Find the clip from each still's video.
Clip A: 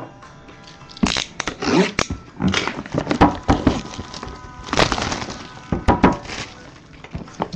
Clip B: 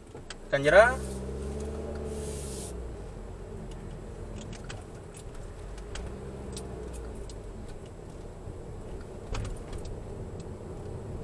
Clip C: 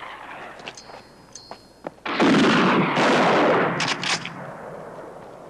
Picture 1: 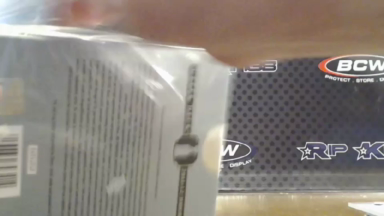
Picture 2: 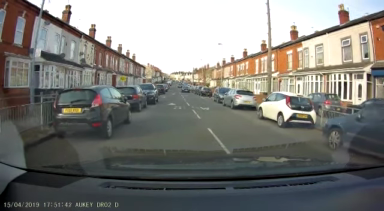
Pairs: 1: A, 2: B